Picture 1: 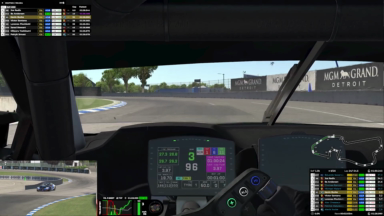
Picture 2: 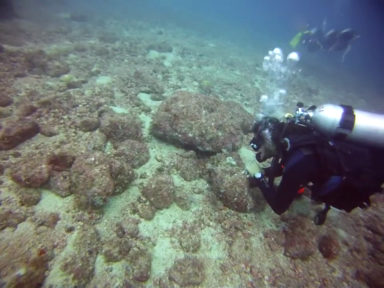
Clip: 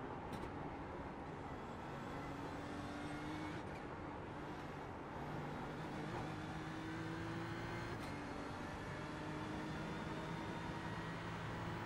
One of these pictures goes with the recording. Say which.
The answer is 1